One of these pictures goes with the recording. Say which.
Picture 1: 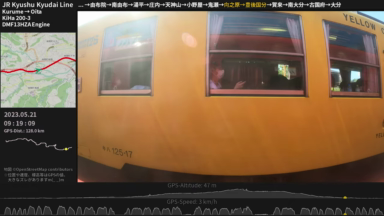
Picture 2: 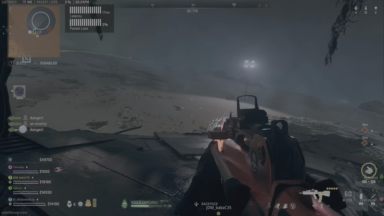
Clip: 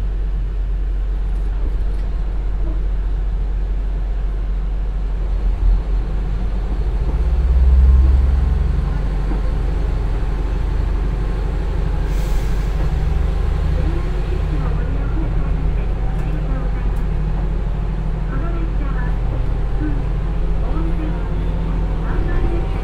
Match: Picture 1